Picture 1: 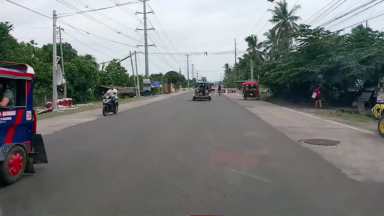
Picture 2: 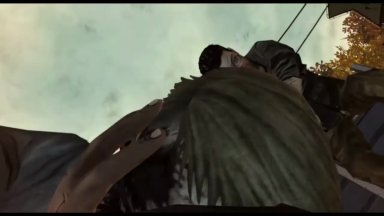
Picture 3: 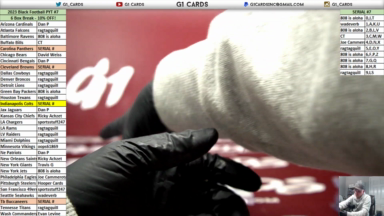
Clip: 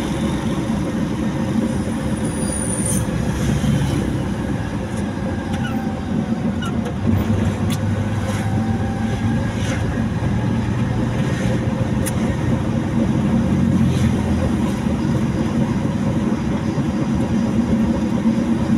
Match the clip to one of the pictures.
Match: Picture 1